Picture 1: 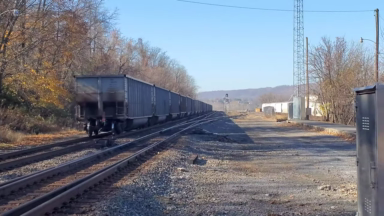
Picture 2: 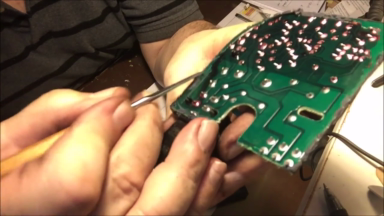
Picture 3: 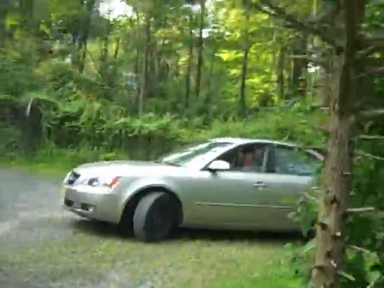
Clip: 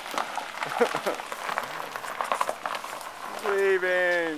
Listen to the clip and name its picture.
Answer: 3